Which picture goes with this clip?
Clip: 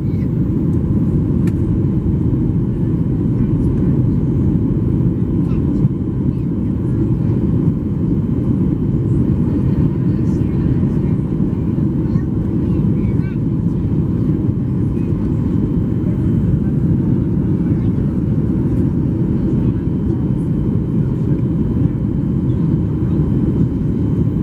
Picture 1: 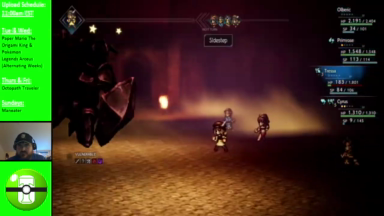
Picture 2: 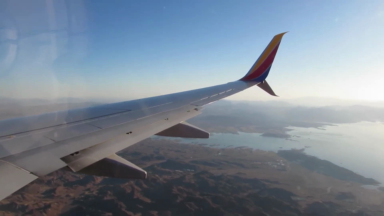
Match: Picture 2